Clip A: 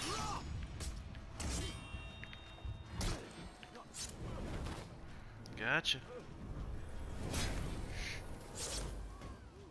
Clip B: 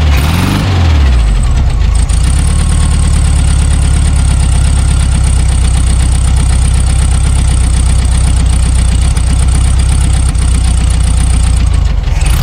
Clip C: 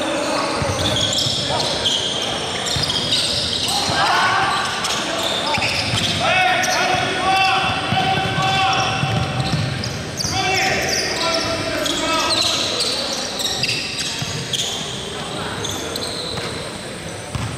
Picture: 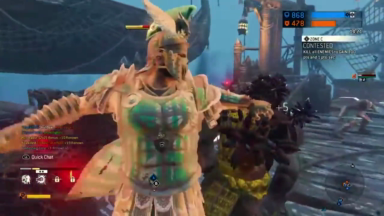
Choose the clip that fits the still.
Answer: A